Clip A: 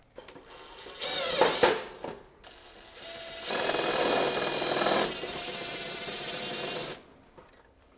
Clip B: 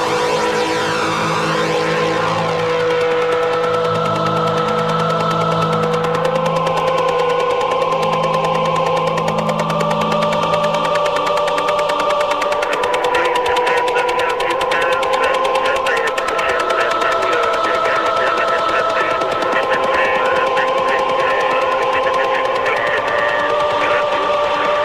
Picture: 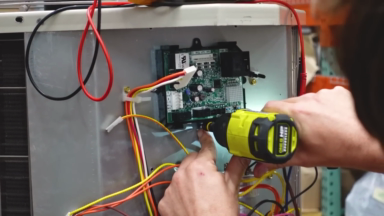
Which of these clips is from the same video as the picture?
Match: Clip A